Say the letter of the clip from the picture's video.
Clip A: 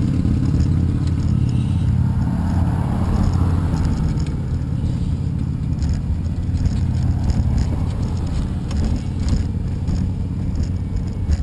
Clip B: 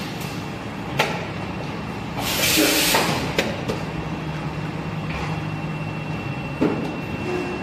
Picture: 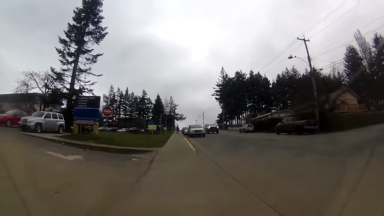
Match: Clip A